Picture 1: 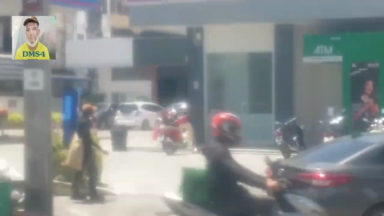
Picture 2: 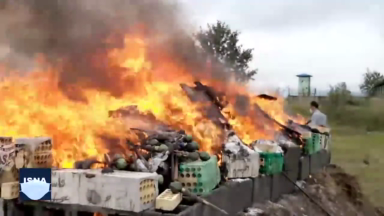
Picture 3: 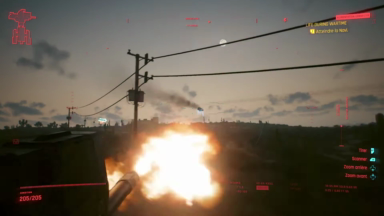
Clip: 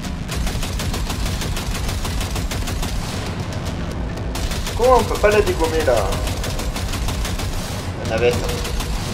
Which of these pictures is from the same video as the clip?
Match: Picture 3